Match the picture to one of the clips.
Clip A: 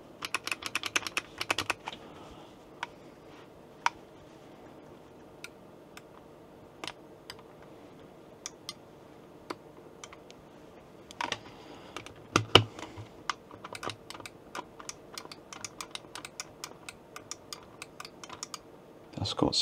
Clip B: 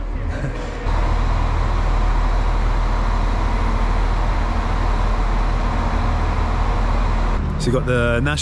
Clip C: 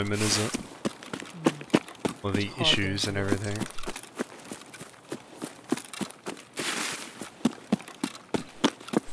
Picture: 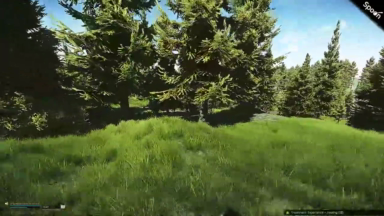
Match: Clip C